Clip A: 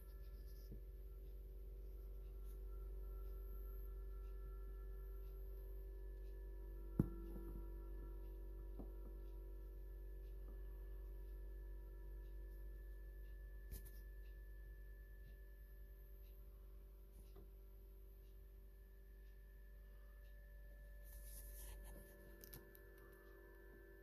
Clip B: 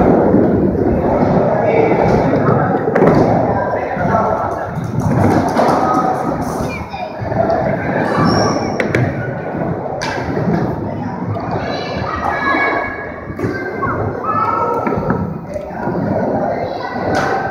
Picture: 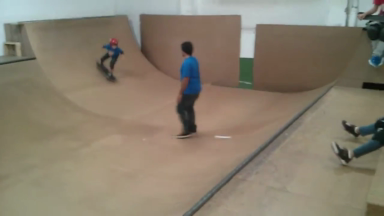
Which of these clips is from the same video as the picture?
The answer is B